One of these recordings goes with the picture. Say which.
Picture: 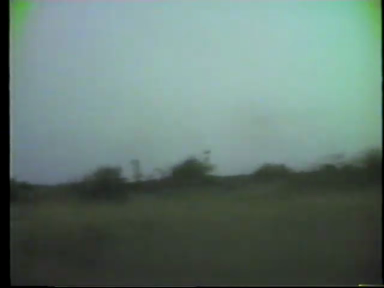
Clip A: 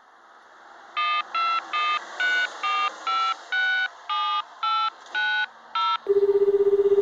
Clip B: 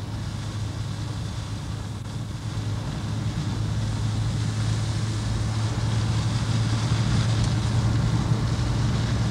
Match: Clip B